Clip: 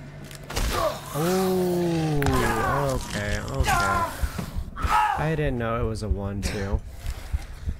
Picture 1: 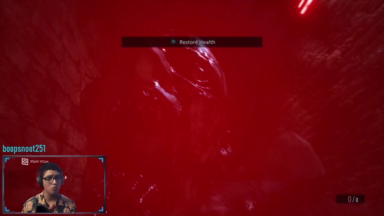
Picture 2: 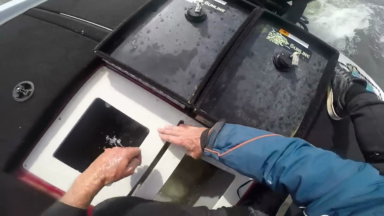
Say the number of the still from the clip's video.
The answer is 1